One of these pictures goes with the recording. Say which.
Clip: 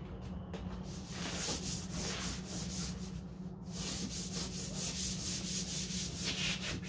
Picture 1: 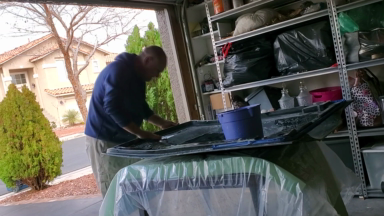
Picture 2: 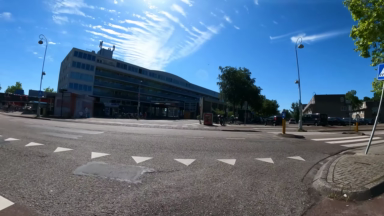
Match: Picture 1